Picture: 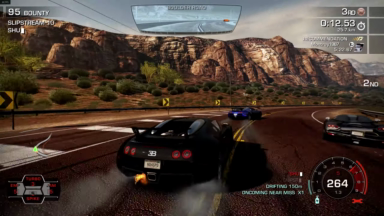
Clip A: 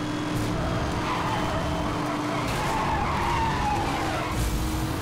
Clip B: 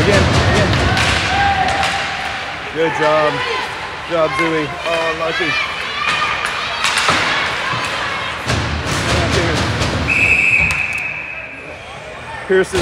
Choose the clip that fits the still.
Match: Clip A